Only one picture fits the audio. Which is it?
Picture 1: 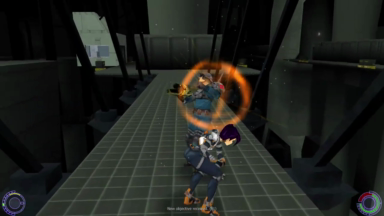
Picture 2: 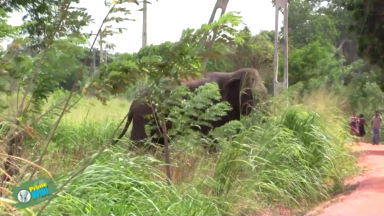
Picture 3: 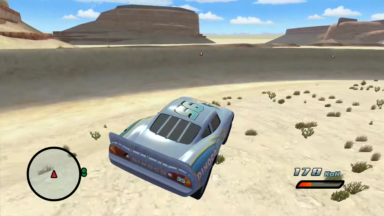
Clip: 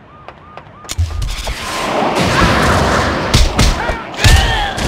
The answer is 1